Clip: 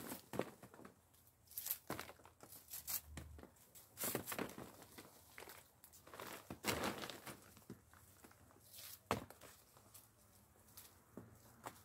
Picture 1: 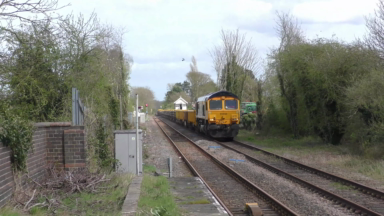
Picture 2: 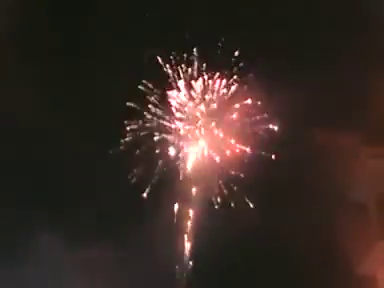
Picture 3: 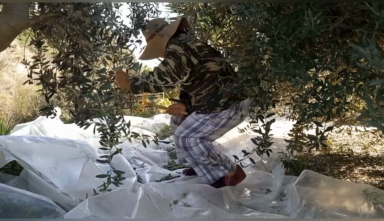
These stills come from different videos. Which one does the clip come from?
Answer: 3